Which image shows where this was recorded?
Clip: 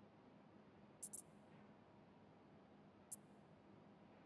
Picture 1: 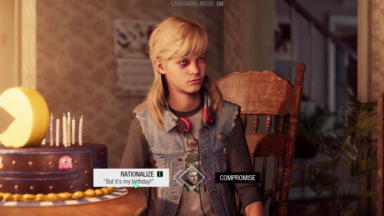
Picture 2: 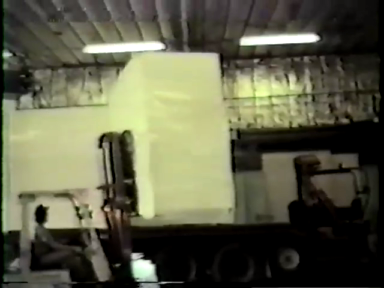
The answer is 1